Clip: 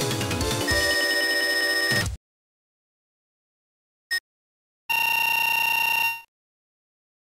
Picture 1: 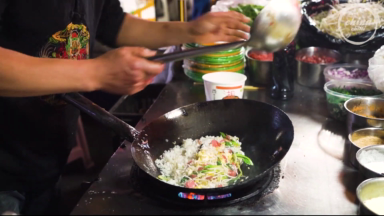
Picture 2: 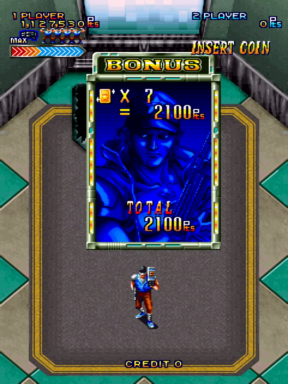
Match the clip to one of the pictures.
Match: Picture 2